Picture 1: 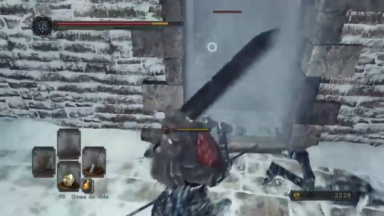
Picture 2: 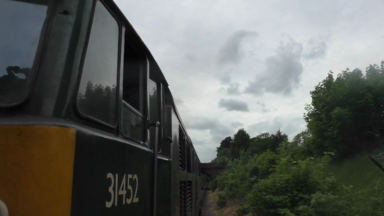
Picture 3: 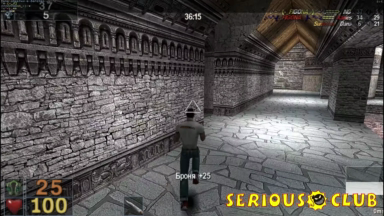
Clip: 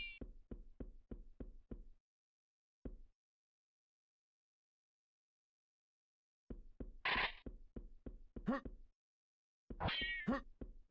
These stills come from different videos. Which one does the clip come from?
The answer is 3